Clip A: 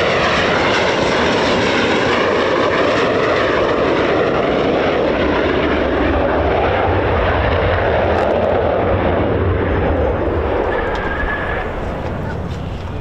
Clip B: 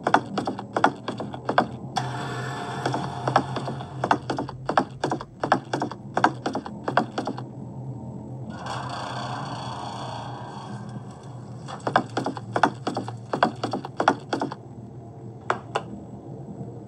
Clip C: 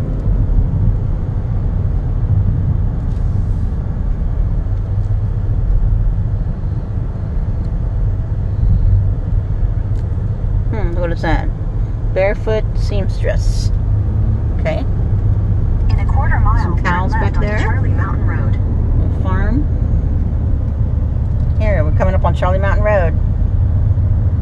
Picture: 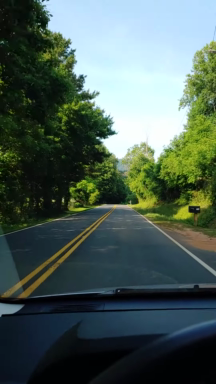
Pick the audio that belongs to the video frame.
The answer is C